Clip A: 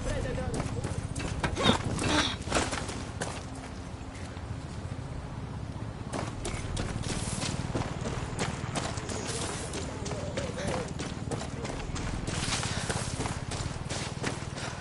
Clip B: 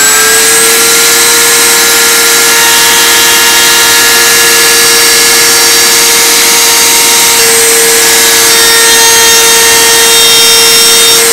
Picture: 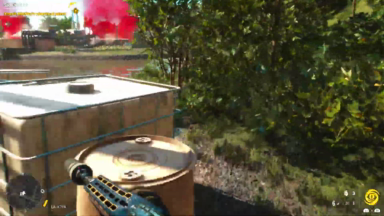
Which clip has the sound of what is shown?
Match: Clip A